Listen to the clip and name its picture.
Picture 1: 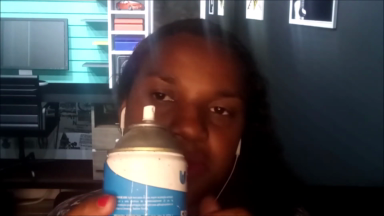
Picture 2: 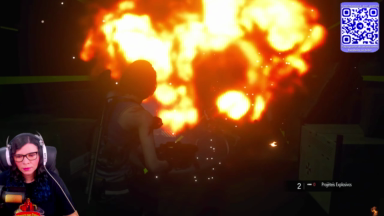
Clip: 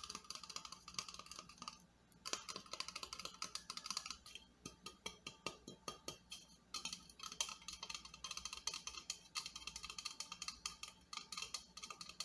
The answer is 1